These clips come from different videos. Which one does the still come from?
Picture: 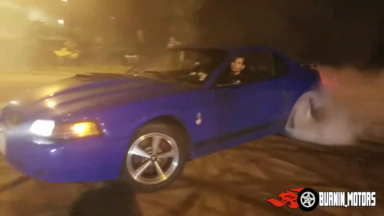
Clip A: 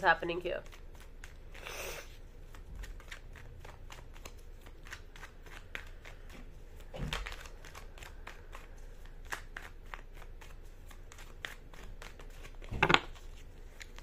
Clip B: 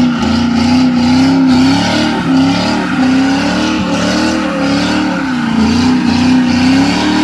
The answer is B